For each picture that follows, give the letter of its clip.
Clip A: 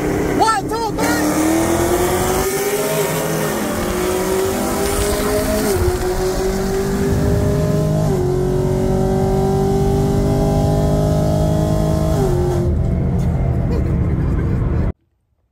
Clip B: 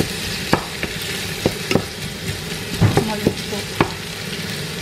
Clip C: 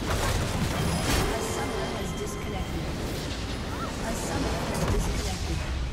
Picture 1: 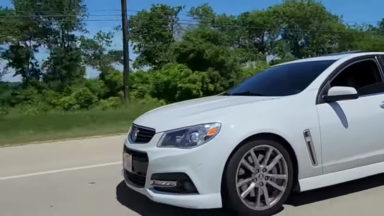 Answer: A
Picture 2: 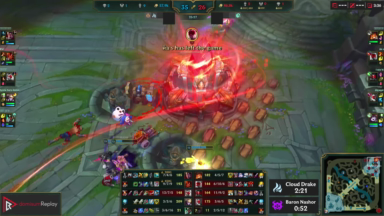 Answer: C